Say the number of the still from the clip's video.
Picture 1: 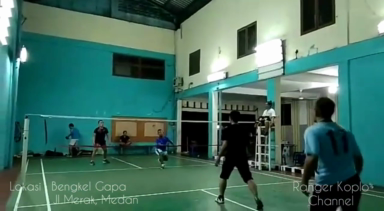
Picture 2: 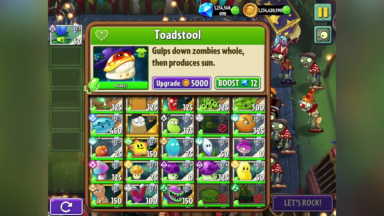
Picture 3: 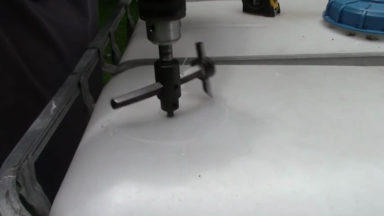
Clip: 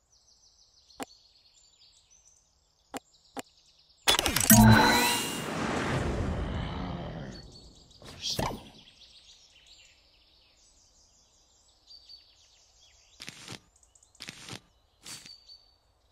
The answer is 2